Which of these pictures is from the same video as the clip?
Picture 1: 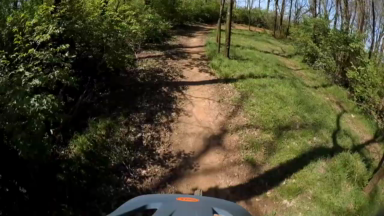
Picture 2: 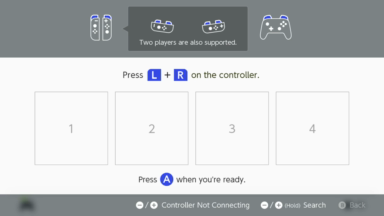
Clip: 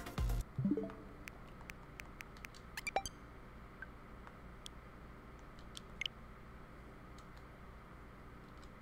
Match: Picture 2